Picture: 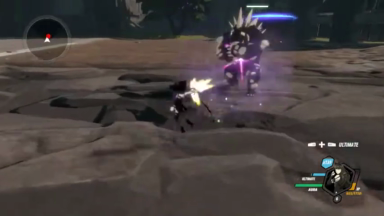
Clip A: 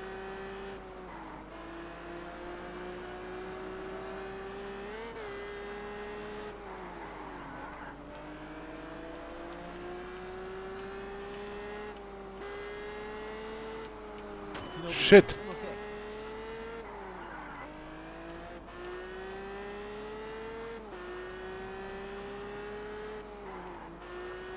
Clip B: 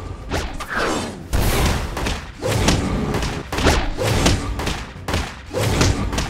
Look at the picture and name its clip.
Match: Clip B